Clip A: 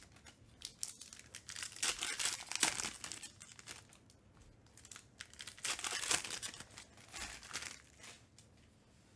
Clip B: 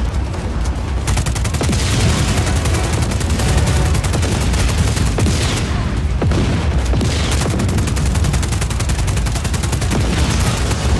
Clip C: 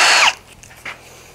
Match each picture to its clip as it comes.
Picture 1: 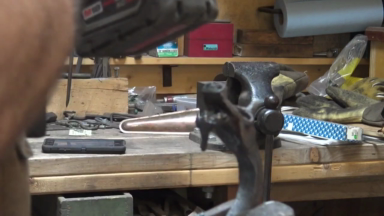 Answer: C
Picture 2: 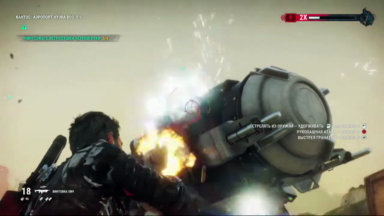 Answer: B